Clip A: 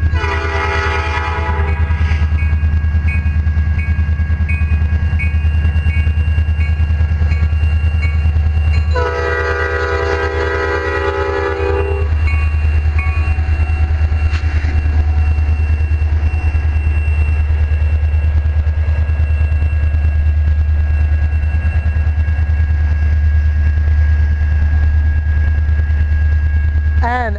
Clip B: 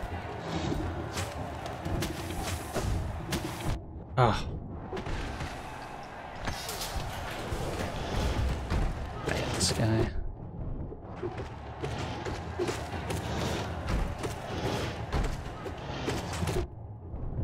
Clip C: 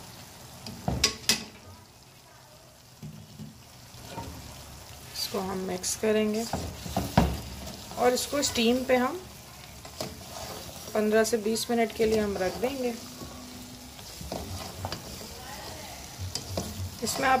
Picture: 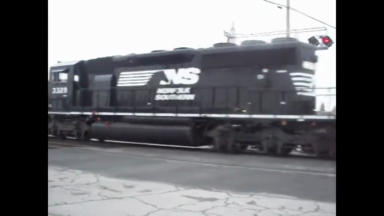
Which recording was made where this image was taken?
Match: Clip A